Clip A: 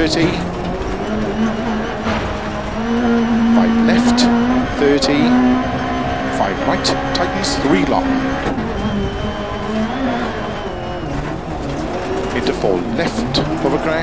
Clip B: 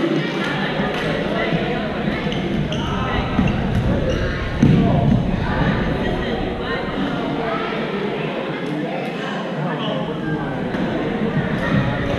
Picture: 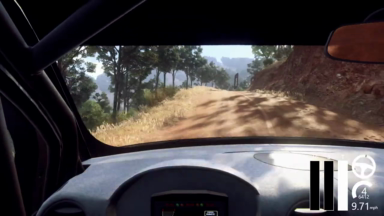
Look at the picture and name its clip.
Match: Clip A